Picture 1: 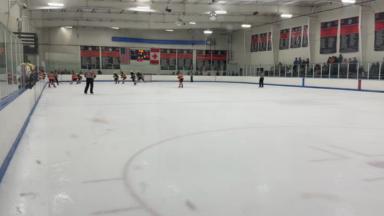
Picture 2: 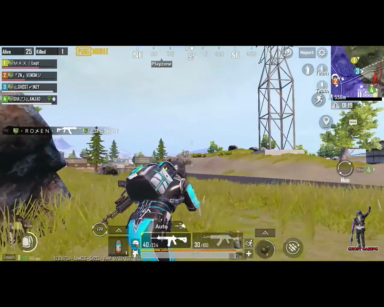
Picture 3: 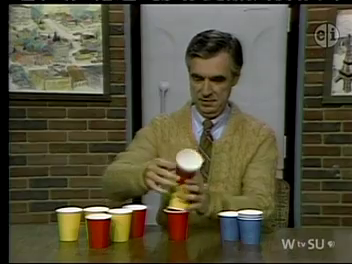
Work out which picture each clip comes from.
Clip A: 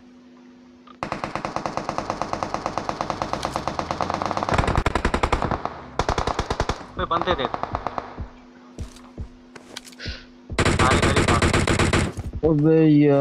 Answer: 2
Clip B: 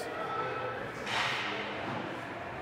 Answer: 1